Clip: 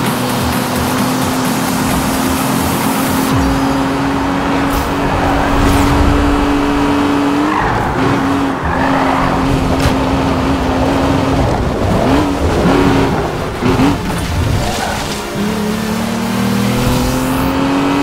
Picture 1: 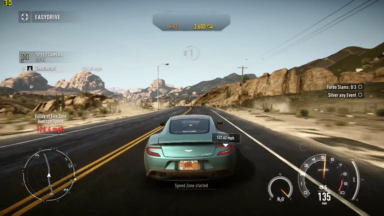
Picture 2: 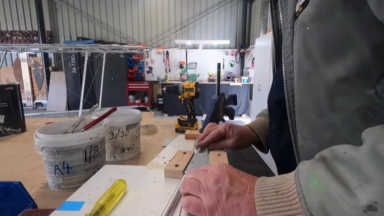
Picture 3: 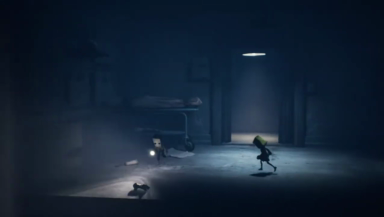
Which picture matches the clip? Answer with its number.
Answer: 1